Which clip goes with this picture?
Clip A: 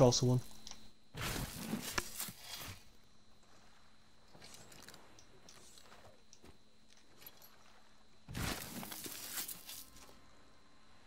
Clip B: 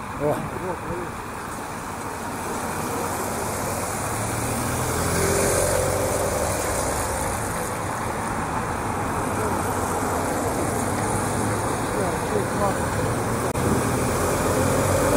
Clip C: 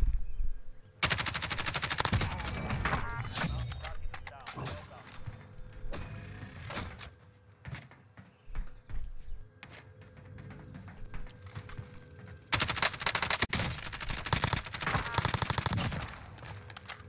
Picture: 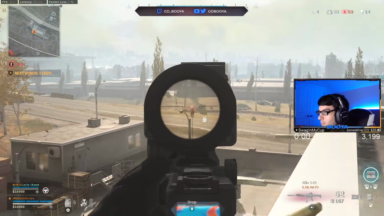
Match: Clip C